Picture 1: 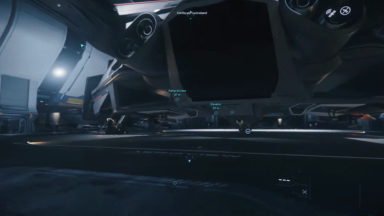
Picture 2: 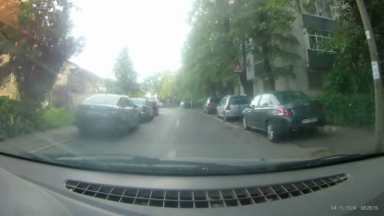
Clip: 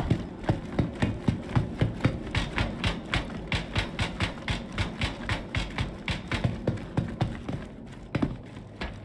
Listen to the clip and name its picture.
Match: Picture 1